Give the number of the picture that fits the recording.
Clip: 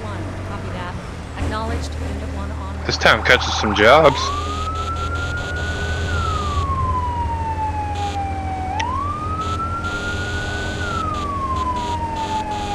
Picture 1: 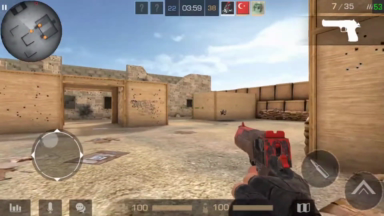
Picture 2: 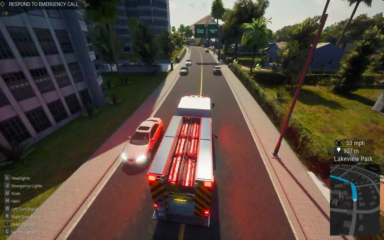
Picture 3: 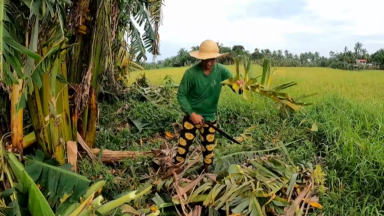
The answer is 2